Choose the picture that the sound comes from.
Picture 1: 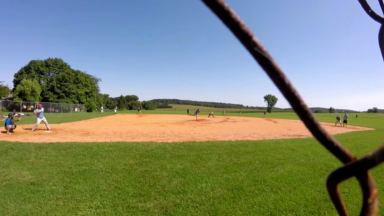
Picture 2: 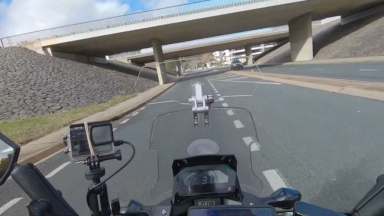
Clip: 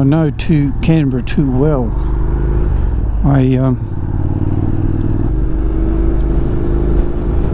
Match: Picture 2